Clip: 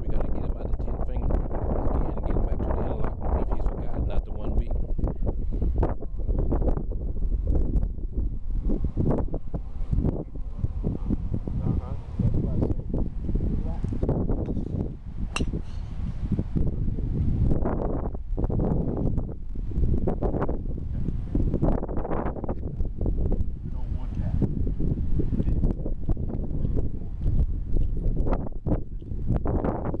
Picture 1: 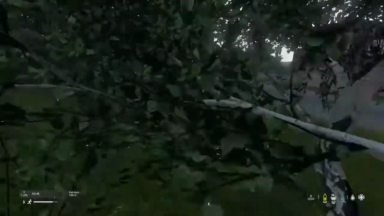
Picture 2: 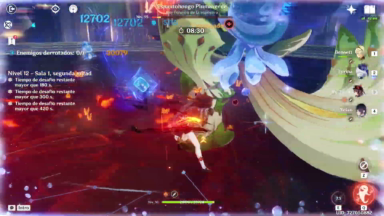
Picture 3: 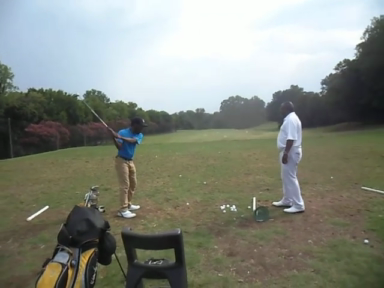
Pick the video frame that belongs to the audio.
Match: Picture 3